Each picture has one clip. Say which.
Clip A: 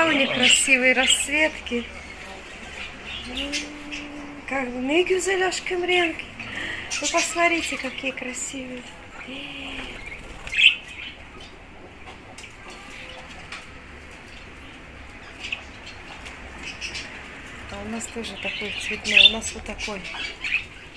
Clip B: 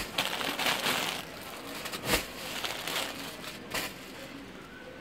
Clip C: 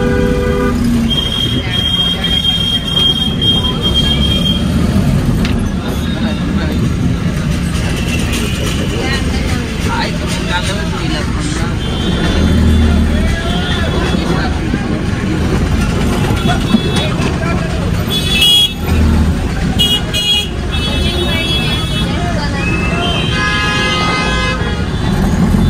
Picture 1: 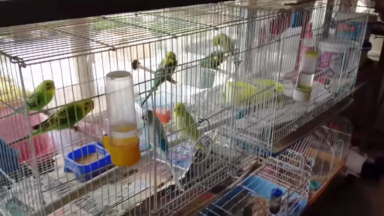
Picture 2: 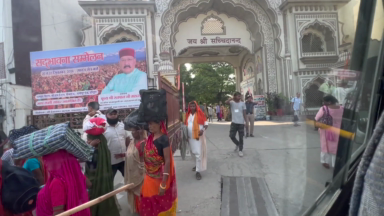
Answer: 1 A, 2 C